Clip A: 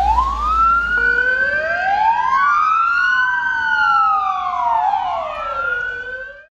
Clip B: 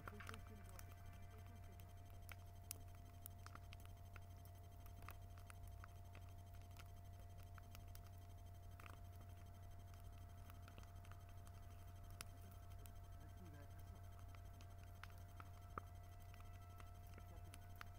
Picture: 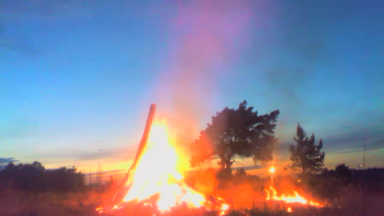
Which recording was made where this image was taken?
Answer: B